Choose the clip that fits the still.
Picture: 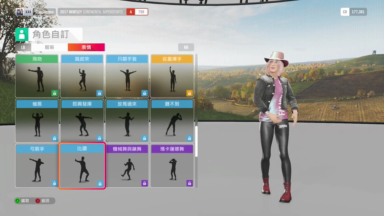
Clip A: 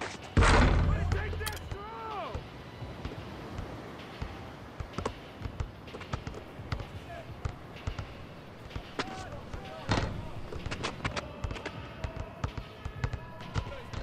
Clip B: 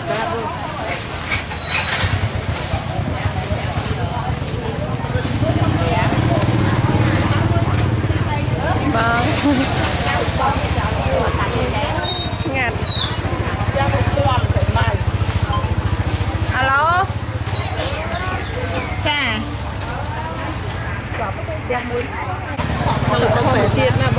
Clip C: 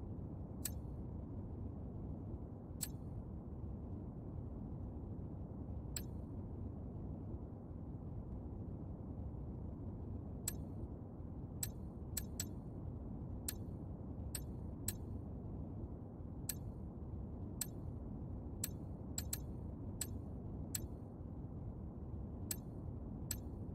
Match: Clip C